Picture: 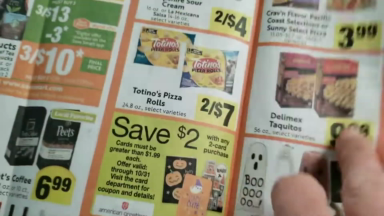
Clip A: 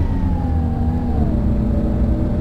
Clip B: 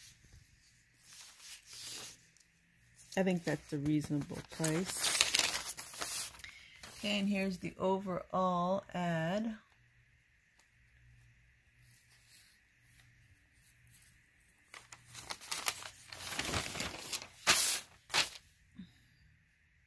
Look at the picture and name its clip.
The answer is B